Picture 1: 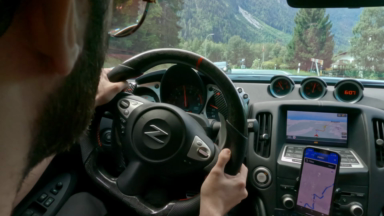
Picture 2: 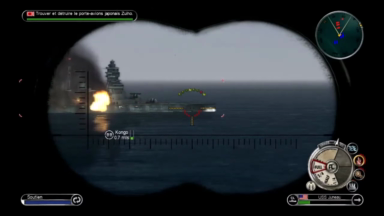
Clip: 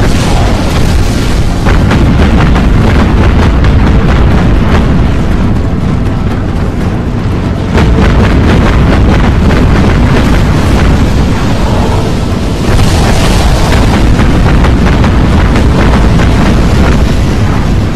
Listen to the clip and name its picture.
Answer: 2